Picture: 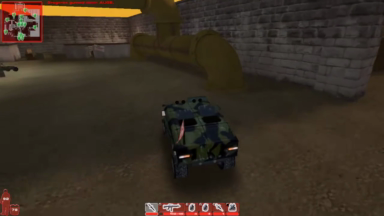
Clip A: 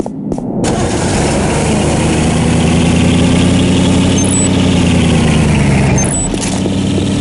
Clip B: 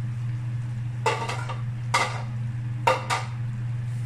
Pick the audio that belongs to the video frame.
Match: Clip A